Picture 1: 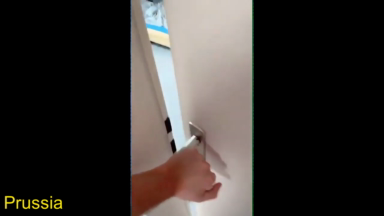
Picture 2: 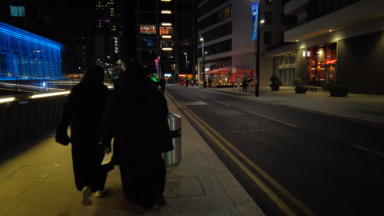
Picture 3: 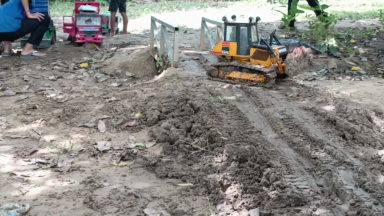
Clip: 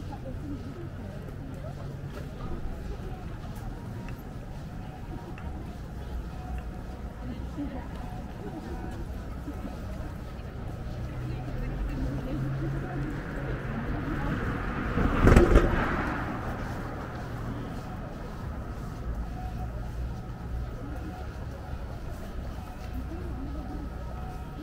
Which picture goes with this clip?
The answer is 2